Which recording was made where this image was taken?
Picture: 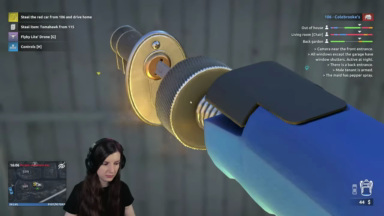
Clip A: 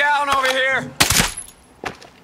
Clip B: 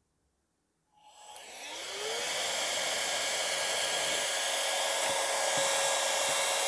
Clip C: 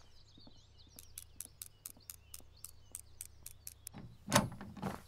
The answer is C